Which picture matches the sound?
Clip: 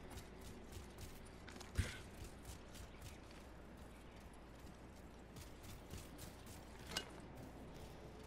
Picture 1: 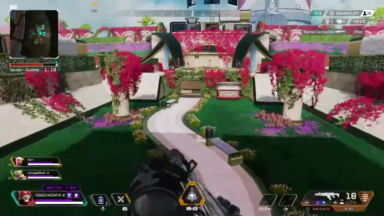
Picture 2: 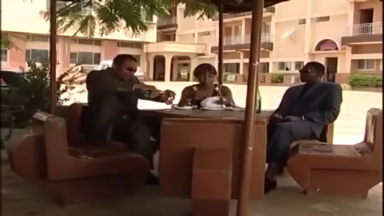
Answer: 1